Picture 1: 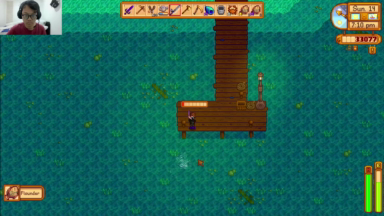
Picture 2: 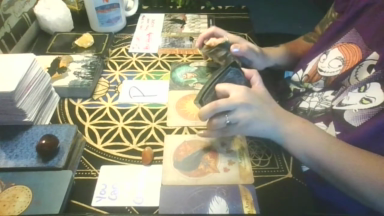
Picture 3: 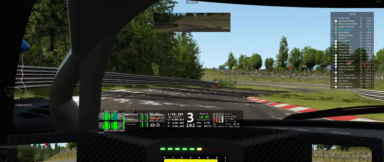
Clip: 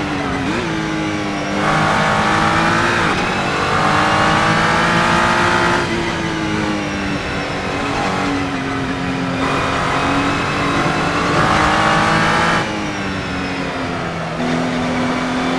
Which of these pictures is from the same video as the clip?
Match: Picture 3